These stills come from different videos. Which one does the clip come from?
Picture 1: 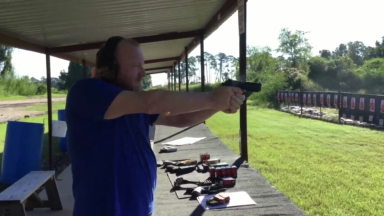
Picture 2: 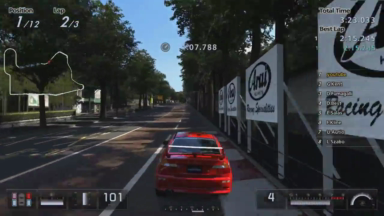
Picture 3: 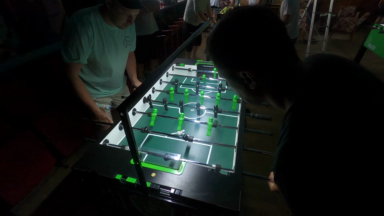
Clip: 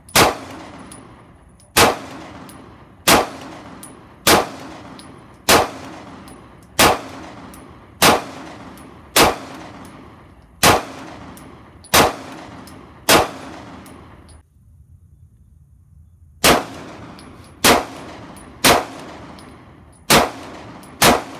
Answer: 1